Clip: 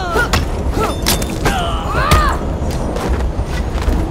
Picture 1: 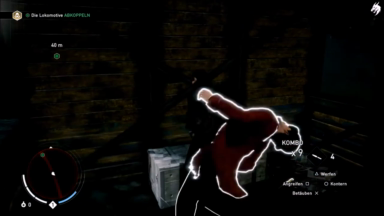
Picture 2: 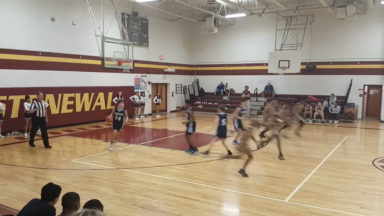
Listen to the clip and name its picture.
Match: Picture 1